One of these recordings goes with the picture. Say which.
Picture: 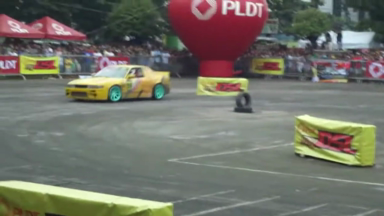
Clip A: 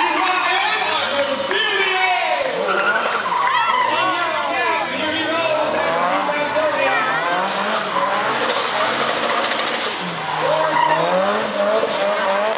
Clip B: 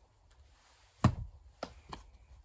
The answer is A